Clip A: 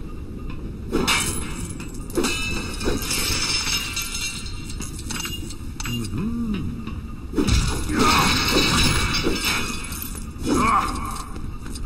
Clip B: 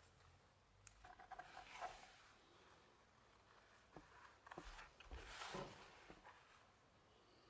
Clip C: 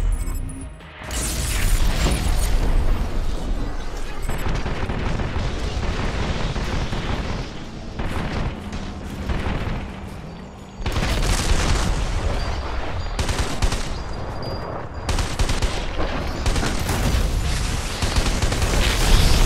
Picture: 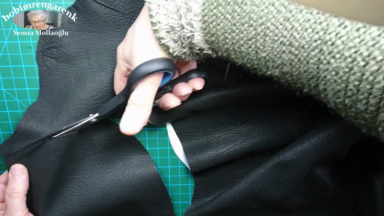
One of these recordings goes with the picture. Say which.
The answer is B